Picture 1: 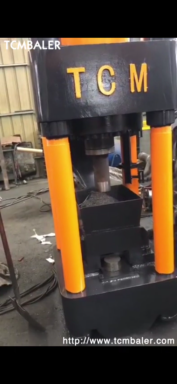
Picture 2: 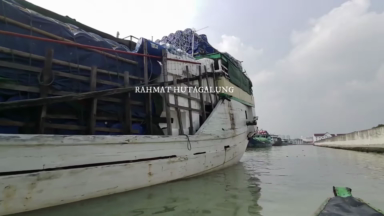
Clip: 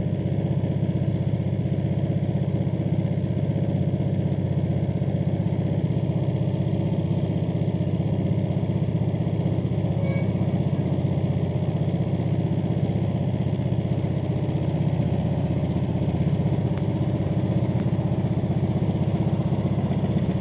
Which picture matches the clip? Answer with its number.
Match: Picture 2